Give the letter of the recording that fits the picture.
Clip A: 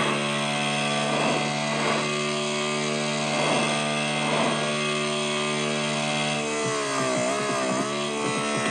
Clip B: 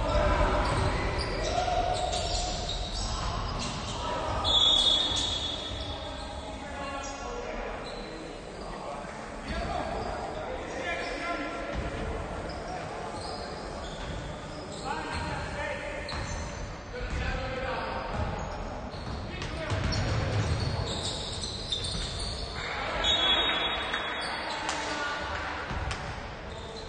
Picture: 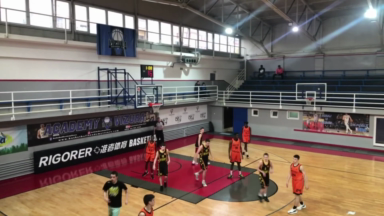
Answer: B